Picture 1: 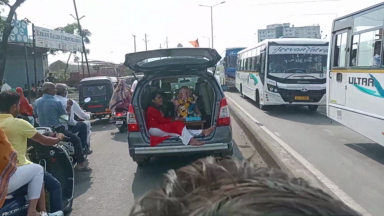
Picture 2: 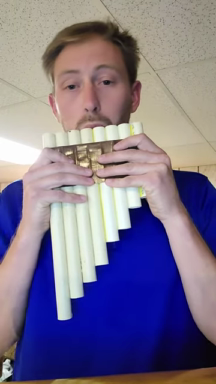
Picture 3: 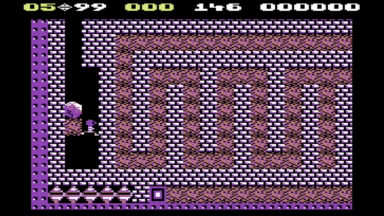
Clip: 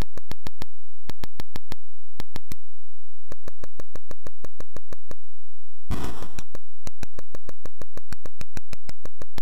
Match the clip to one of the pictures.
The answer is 3